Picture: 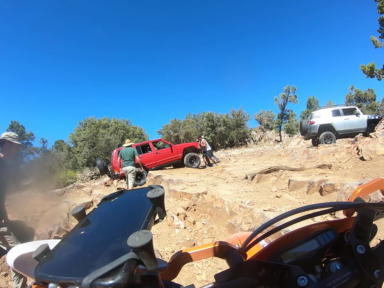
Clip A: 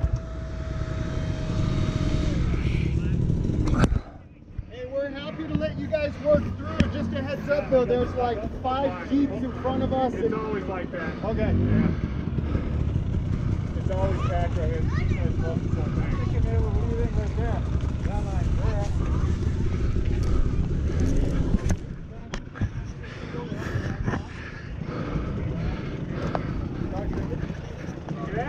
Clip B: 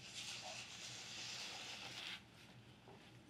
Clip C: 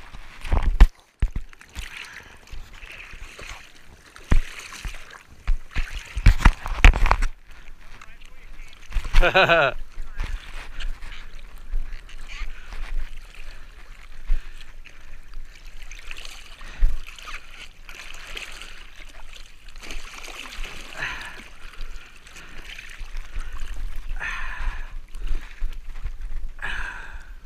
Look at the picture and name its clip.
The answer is A